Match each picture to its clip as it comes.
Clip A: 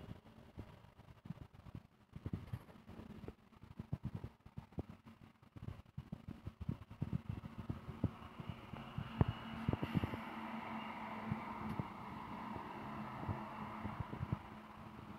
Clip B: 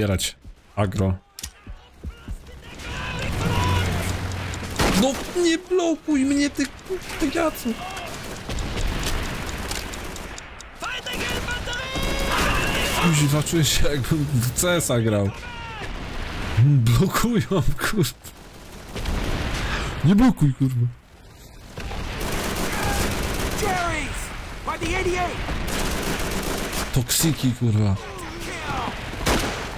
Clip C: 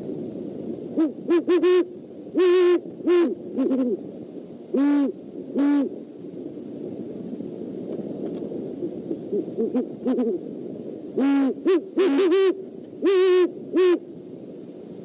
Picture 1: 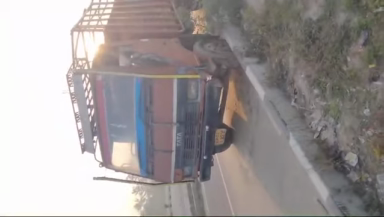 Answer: A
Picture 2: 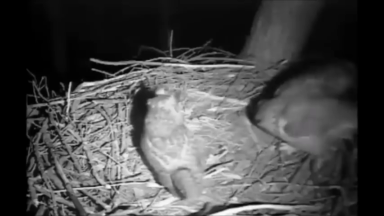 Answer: C